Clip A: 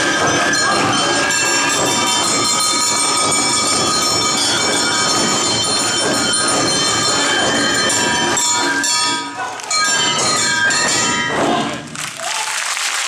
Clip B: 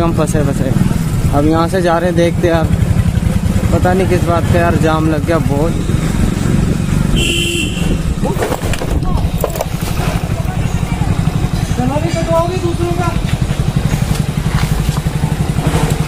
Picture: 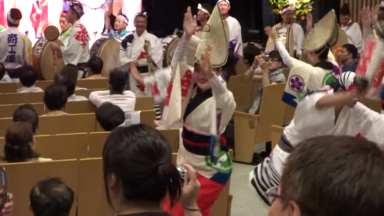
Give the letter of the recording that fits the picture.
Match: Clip A